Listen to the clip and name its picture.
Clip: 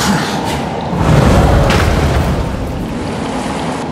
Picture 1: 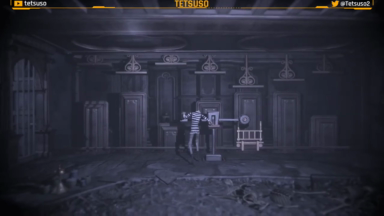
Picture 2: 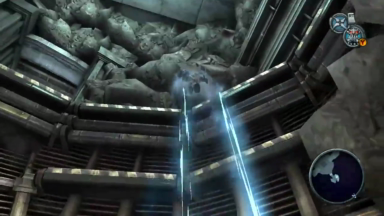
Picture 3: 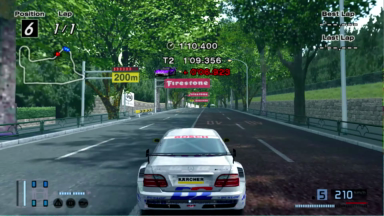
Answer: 2